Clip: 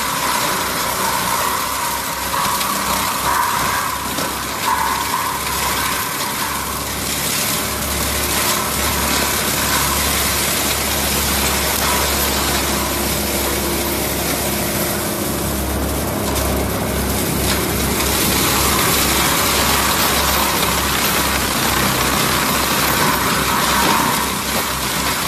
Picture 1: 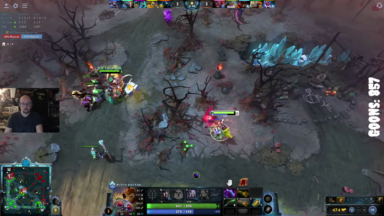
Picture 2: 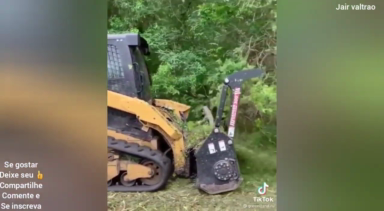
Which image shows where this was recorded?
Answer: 2